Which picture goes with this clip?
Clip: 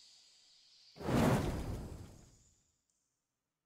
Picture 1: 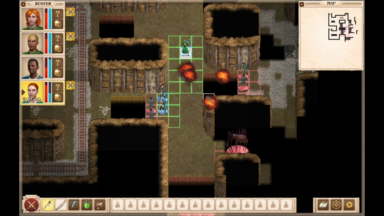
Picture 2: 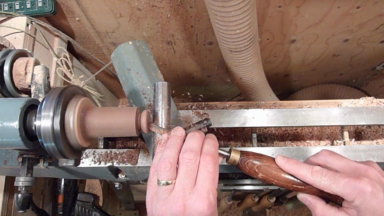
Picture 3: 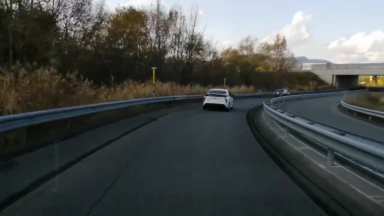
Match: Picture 1